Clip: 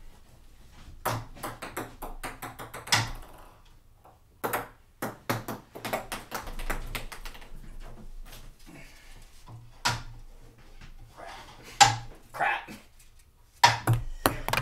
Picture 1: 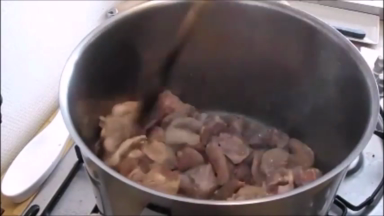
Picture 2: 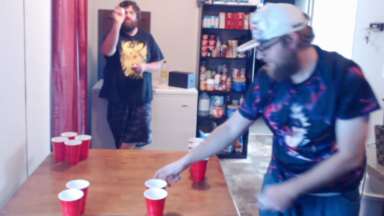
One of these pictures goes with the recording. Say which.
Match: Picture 2